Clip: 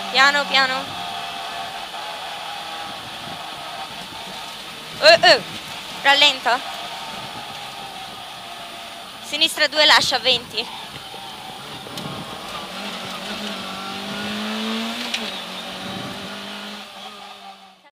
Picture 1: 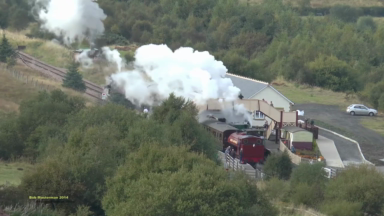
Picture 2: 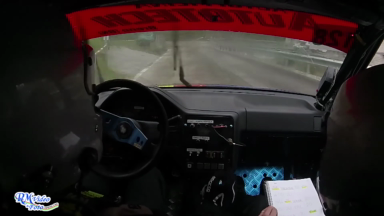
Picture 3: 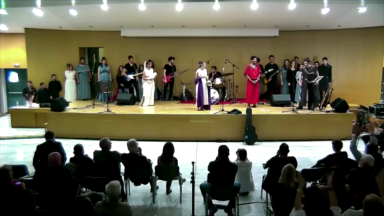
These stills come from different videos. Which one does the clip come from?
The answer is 2